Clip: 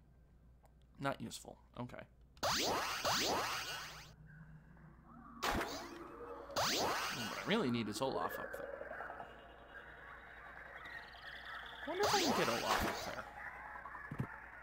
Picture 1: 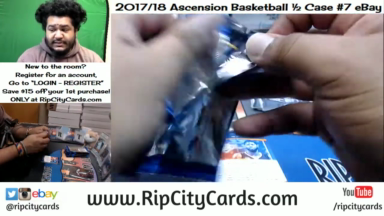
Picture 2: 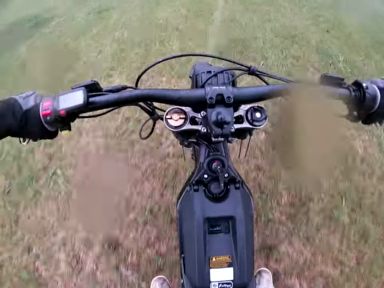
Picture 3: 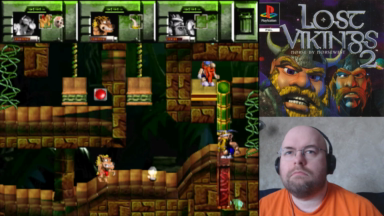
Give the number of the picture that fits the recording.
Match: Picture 3